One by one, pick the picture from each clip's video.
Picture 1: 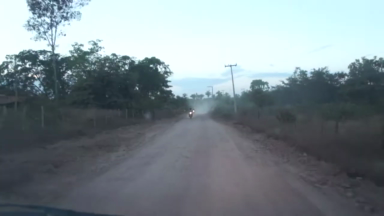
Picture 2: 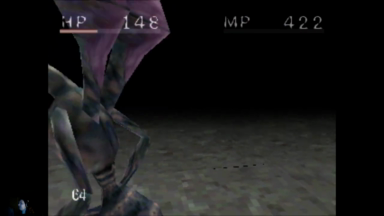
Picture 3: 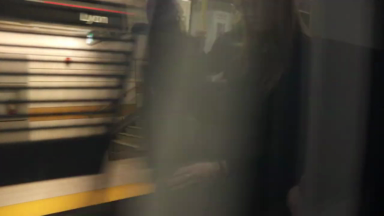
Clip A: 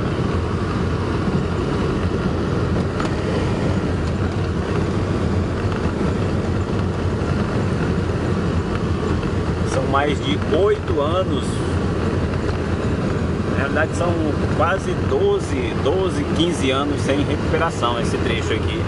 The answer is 1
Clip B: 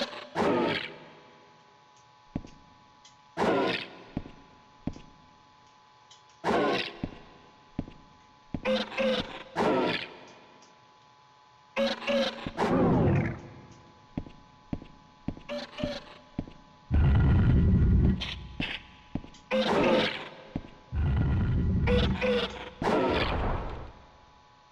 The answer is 2